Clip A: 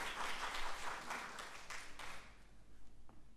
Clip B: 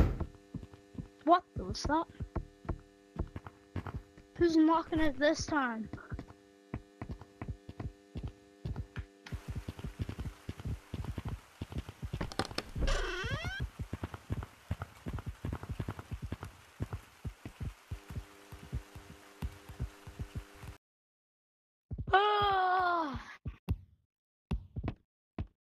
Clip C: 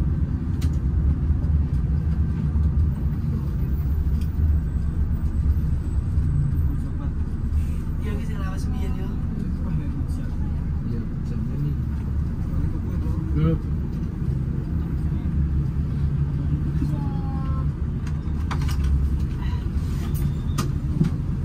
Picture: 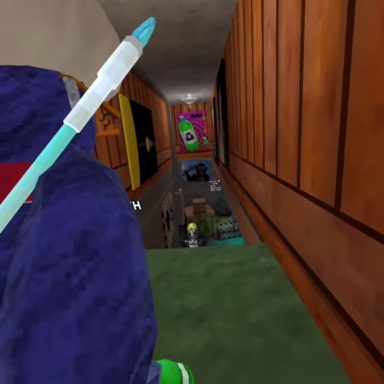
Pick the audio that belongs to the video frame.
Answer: B